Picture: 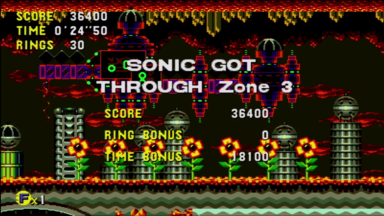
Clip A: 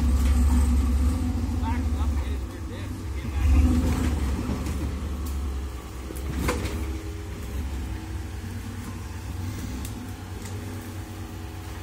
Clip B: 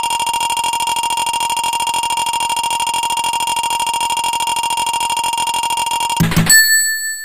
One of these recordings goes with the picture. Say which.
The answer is B